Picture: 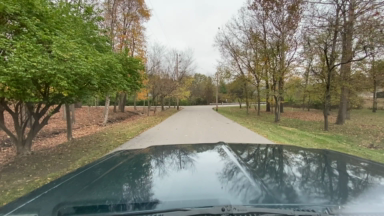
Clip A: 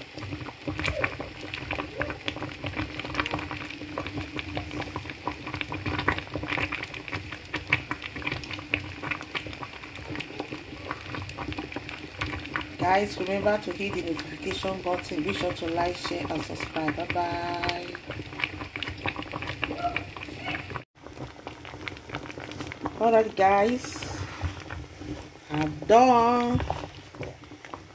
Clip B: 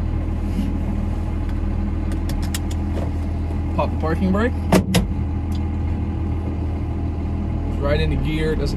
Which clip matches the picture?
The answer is B